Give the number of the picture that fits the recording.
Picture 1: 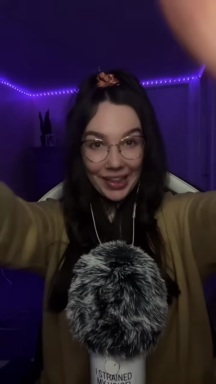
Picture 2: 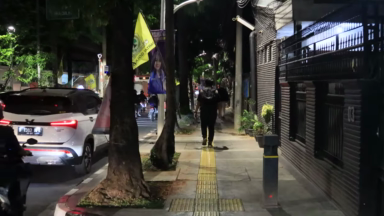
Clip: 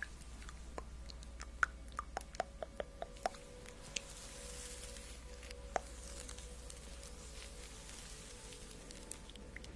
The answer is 1